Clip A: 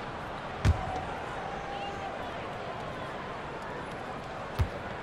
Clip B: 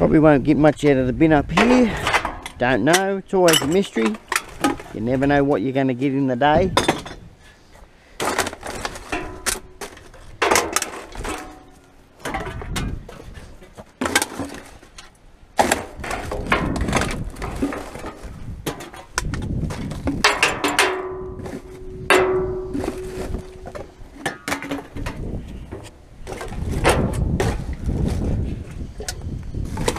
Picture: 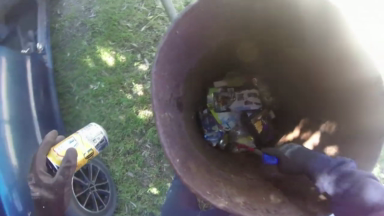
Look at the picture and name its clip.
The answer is B